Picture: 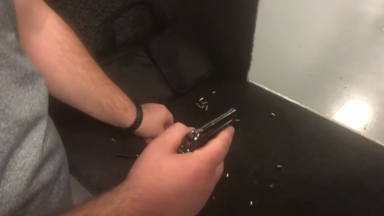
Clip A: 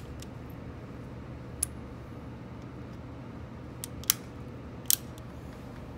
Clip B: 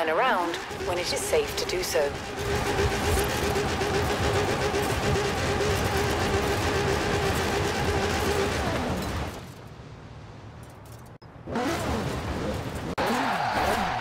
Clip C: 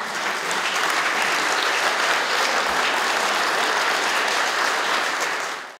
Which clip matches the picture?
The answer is A